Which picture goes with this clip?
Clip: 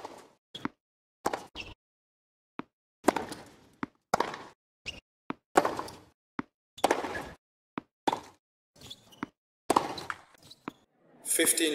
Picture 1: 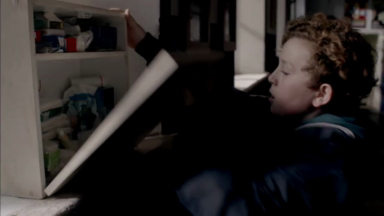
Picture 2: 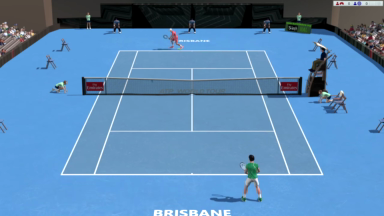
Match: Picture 2